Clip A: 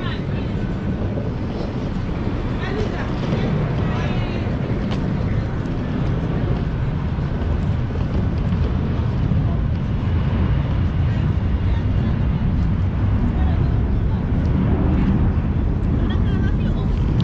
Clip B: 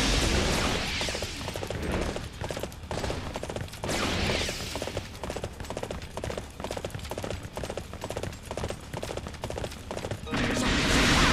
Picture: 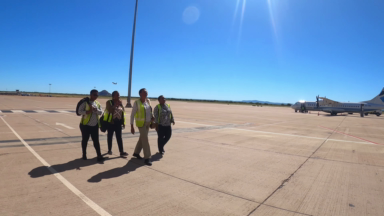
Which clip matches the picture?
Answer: A